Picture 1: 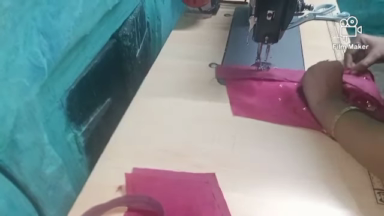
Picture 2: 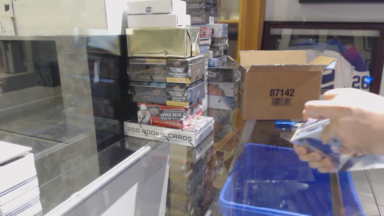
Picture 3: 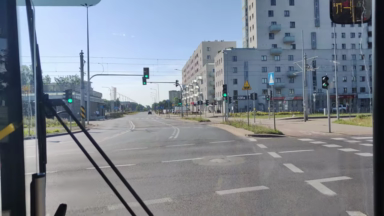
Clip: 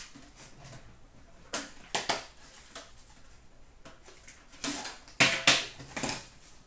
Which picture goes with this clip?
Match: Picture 2